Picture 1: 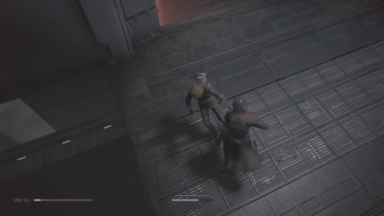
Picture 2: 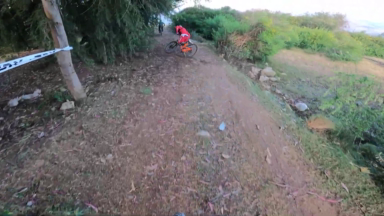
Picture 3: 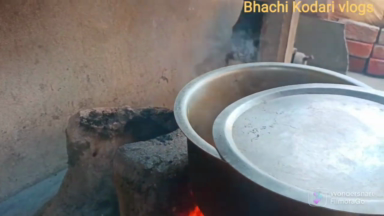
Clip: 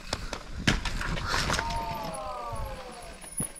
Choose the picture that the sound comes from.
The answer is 2